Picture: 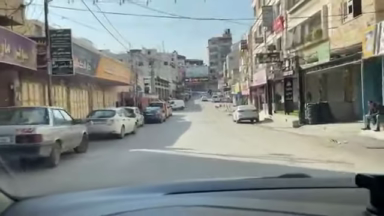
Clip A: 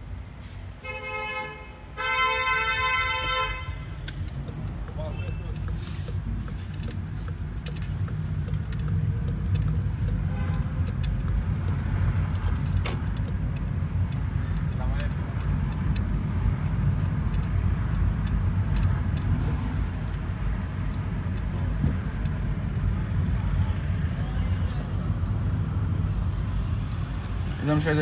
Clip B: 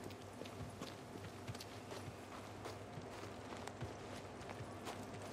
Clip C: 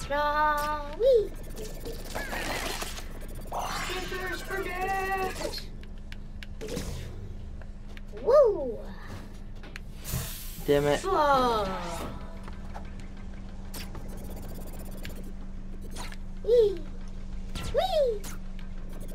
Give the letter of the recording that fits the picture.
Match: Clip A